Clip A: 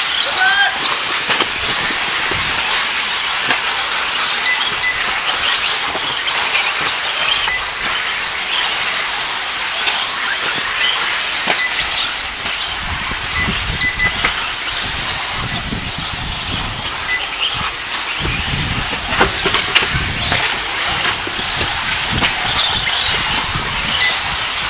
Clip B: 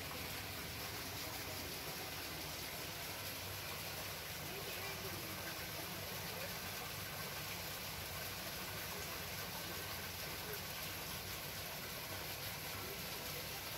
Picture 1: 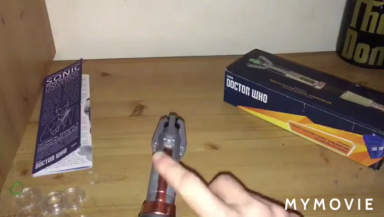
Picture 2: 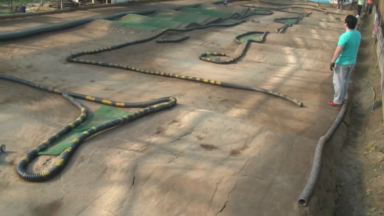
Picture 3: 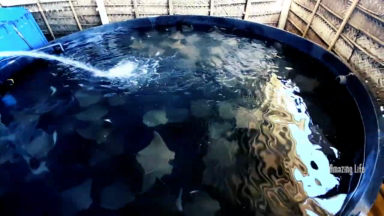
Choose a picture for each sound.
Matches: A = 2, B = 3